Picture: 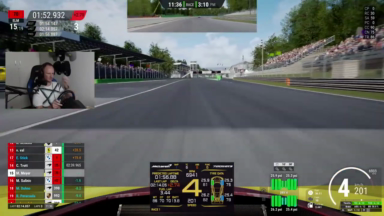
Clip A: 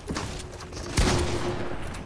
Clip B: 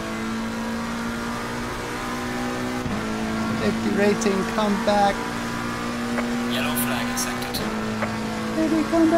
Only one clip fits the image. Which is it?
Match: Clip B